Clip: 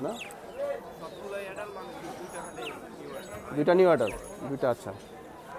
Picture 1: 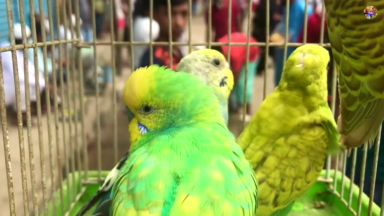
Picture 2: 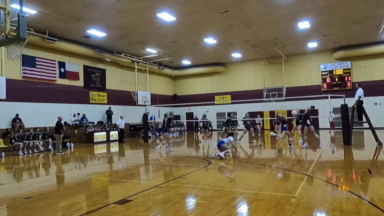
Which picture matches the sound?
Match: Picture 1